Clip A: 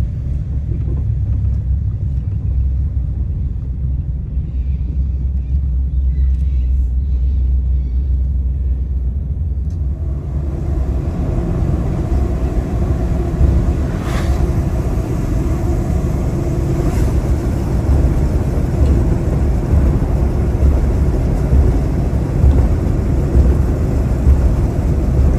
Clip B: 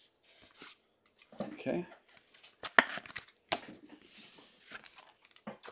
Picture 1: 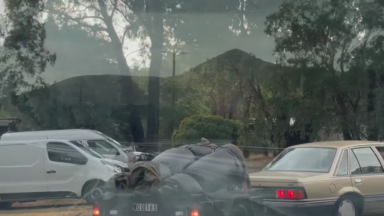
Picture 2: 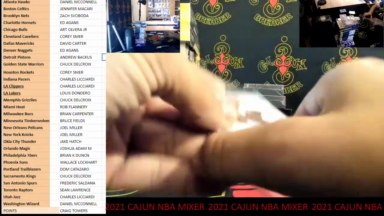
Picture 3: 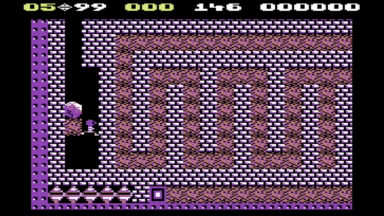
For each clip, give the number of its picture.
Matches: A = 1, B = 2